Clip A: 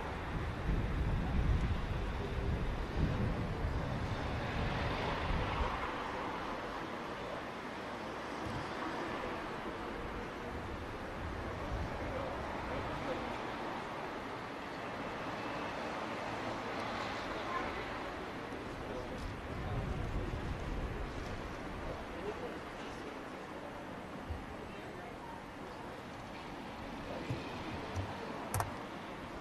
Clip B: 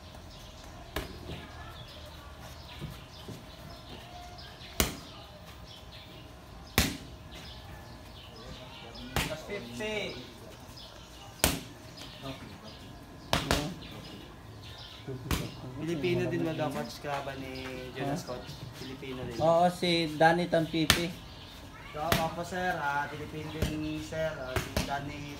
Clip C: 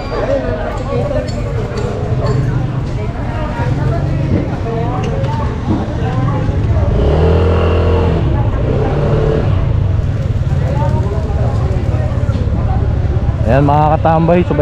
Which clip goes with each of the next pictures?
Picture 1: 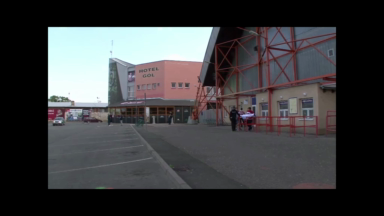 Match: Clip A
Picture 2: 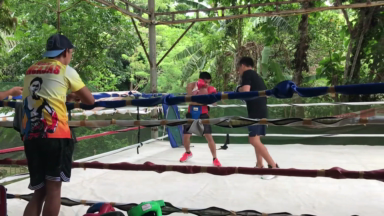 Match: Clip B